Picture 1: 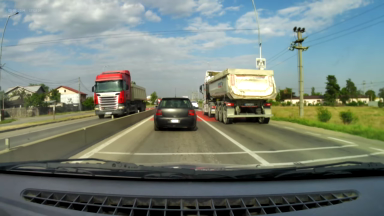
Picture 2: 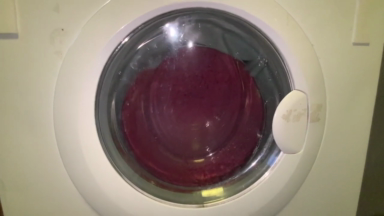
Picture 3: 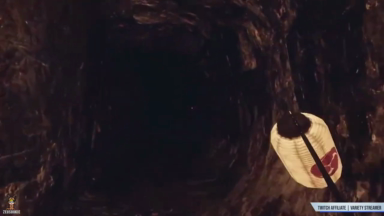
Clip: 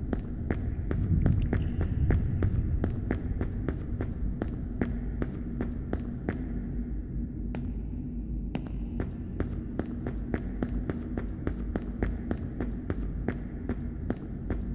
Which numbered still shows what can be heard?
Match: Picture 3